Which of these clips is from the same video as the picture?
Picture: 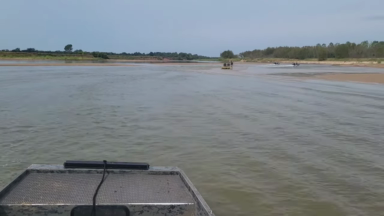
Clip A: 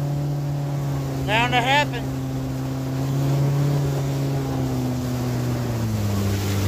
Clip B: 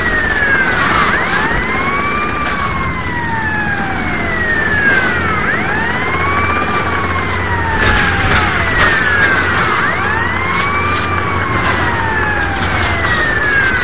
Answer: A